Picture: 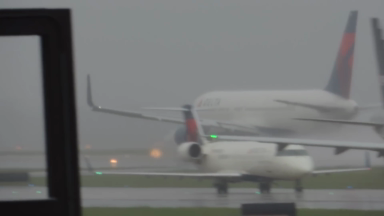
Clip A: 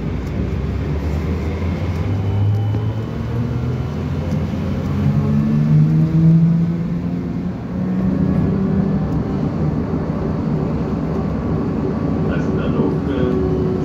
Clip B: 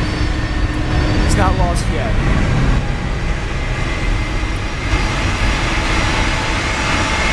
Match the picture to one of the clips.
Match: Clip B